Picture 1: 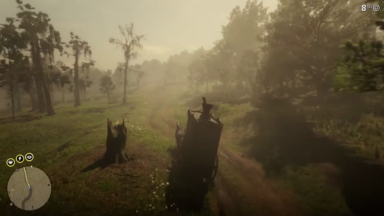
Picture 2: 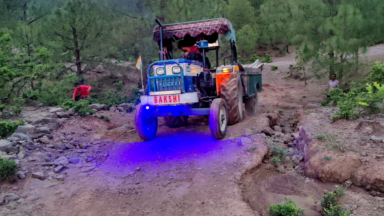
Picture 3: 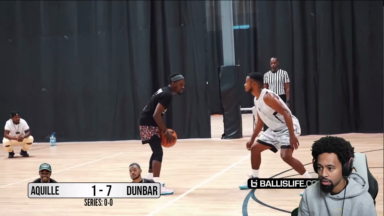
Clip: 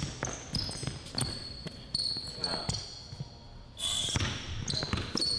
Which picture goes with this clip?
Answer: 3